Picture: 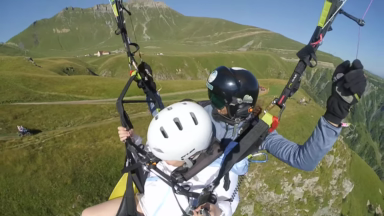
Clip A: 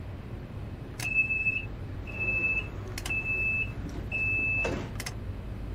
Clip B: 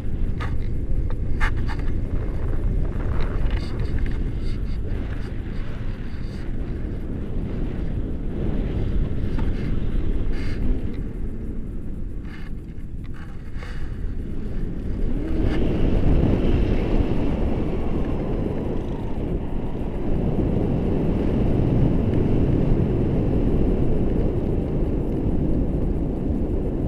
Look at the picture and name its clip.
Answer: B